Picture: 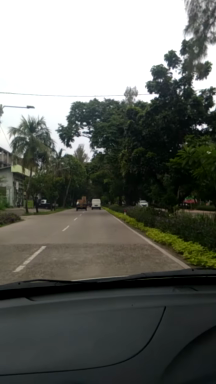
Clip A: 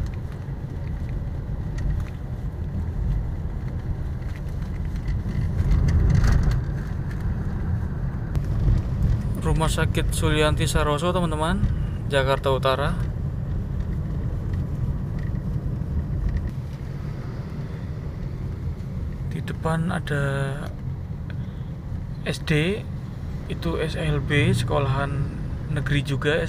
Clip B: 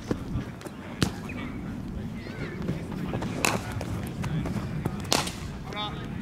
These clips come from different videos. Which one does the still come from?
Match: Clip A